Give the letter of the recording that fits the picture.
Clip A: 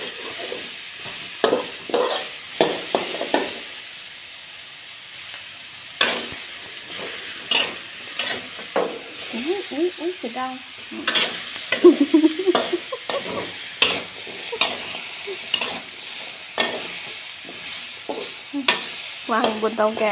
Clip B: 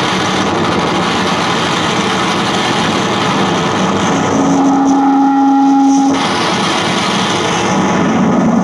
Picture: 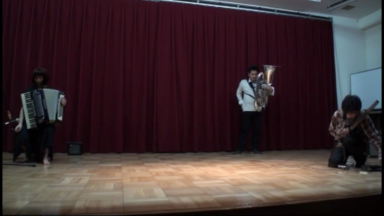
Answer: B